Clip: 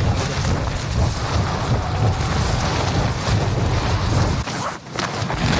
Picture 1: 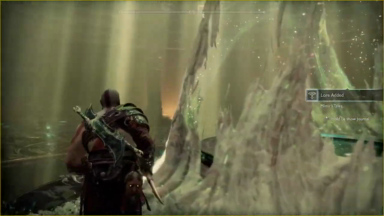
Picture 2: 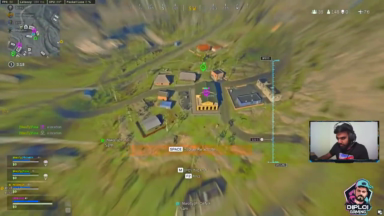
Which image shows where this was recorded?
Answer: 2